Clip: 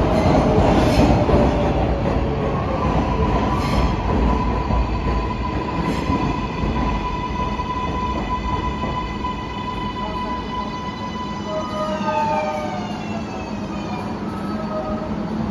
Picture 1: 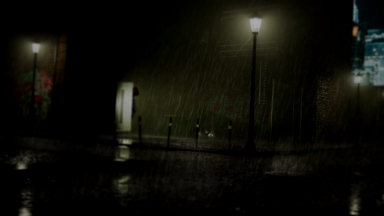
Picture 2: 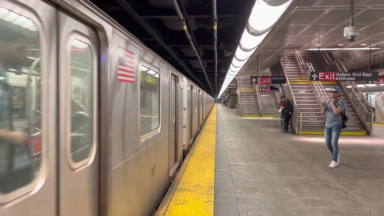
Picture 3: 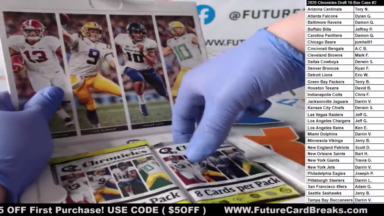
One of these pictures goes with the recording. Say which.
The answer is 2